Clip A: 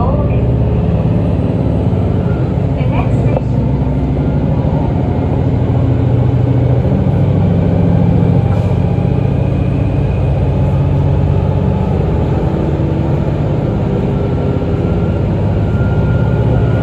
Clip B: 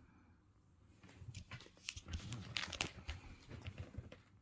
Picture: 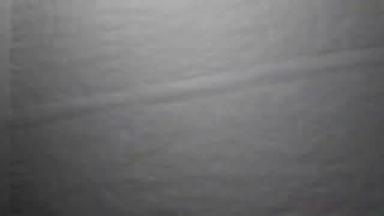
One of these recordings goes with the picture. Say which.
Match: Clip B